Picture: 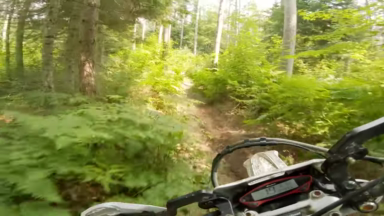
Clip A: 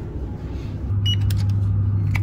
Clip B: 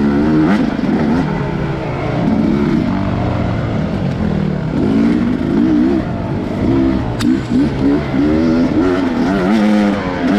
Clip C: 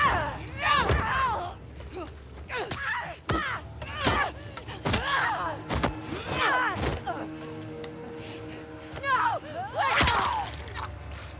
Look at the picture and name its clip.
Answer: B